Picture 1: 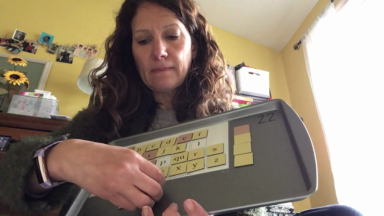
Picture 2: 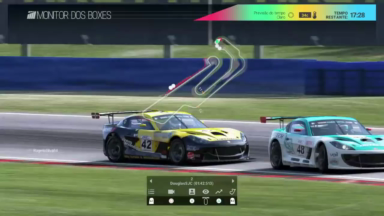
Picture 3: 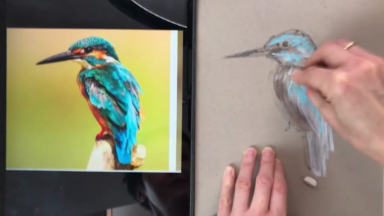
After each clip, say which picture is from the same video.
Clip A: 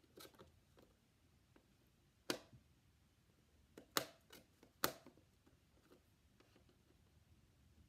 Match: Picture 1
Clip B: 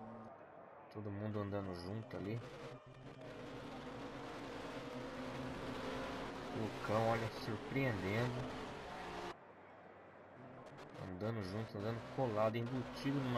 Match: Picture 2